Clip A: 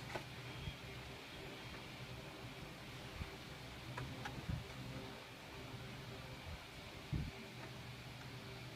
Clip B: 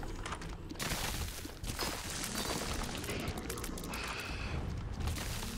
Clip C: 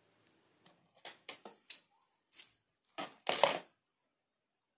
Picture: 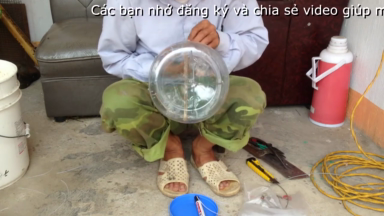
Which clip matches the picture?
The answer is A